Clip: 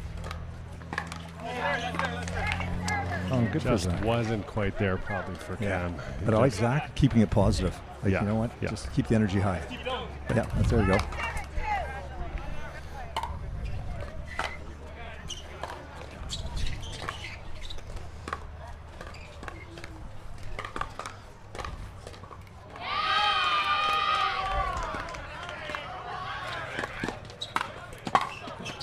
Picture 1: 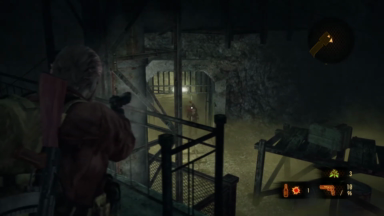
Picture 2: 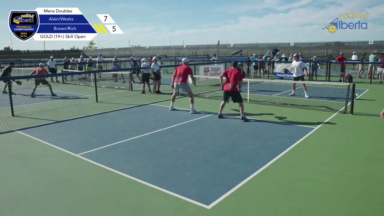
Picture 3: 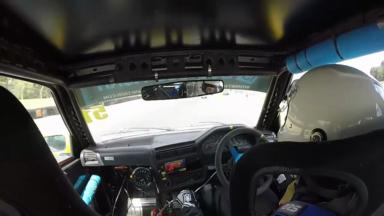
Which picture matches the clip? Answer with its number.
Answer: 2